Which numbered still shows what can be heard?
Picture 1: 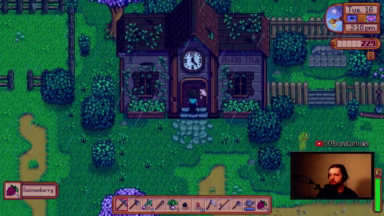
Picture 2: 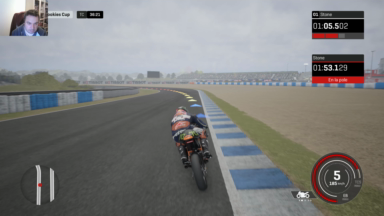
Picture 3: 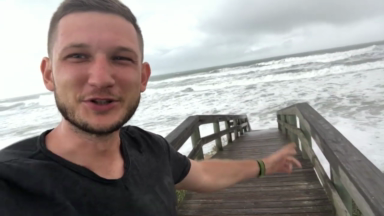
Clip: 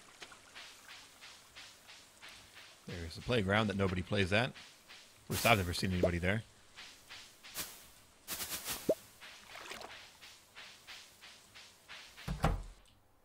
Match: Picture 1